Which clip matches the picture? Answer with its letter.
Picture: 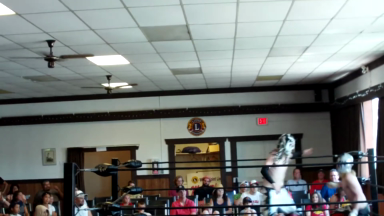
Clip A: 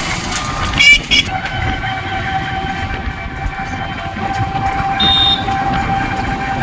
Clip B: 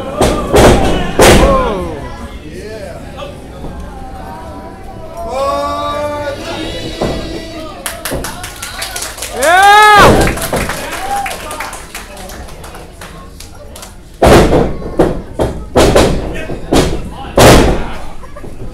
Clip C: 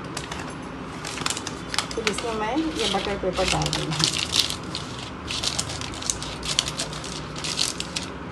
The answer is B